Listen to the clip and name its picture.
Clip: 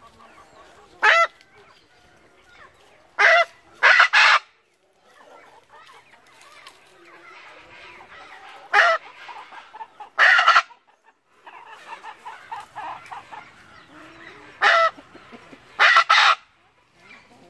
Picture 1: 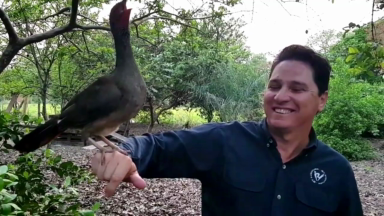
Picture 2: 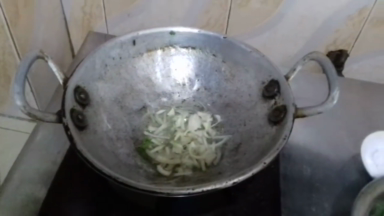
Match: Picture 1